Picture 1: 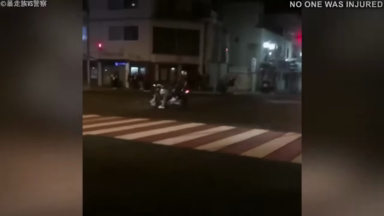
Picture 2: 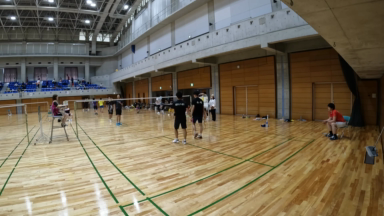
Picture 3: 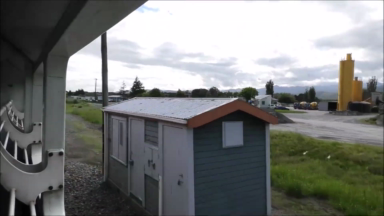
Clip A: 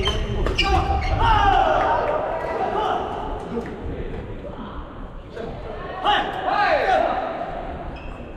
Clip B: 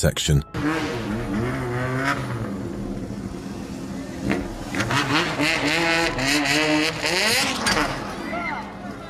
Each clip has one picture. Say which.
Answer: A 2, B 1